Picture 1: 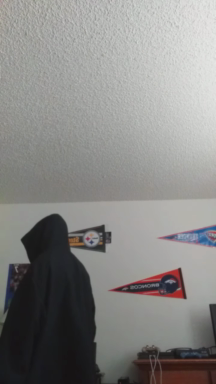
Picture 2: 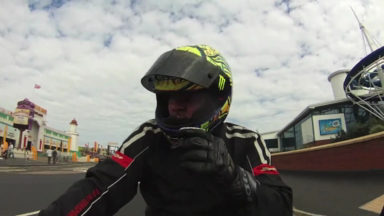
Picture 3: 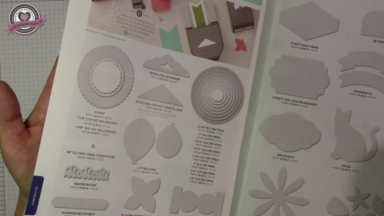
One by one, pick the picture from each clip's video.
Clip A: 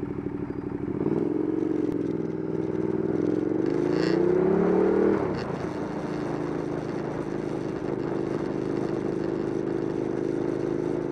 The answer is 2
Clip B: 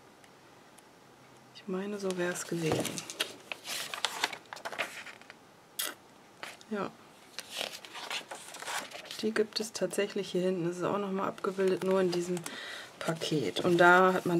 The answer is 3